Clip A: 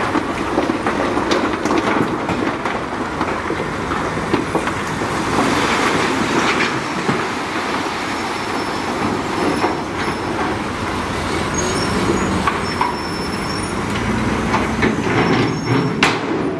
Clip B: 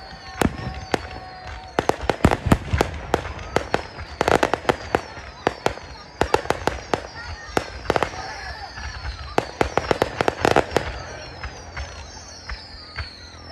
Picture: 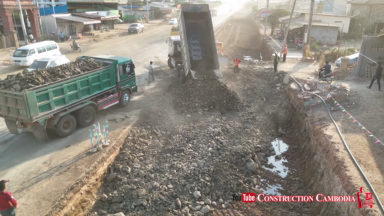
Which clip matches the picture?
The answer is A